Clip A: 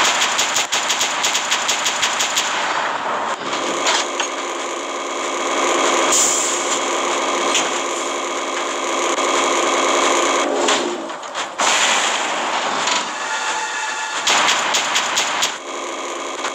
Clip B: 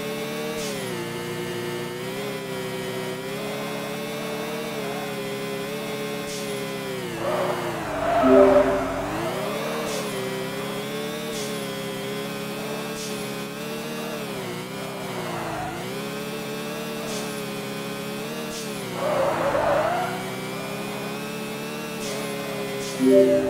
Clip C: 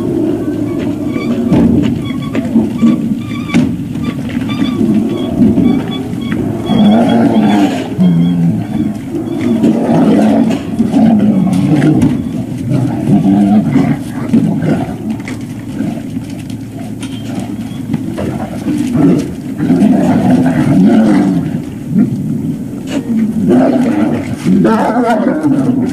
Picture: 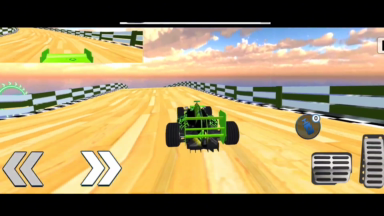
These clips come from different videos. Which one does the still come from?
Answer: B